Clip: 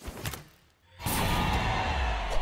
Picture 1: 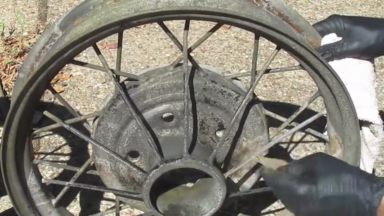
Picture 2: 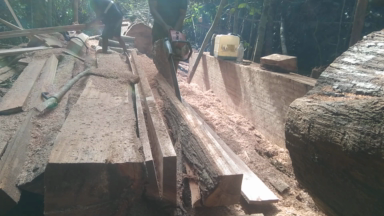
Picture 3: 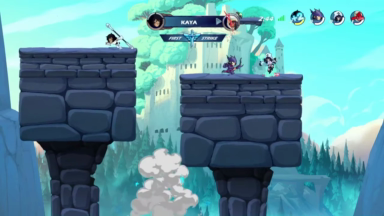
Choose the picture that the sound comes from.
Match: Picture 3